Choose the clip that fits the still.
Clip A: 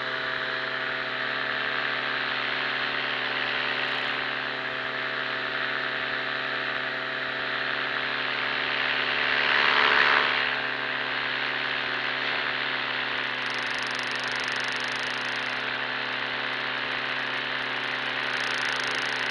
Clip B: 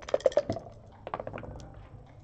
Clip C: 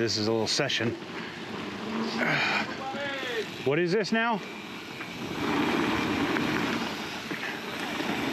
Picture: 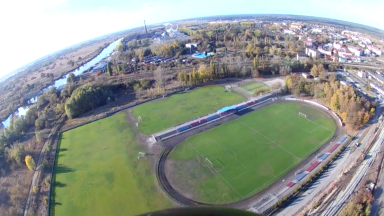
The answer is A